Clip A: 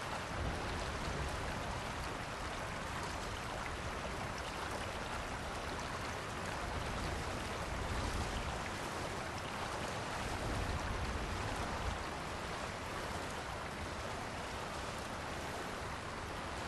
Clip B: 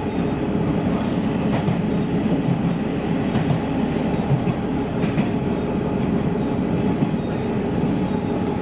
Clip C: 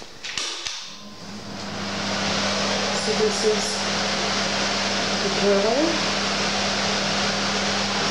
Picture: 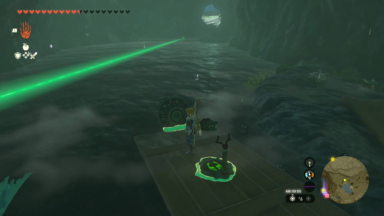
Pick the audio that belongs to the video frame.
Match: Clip A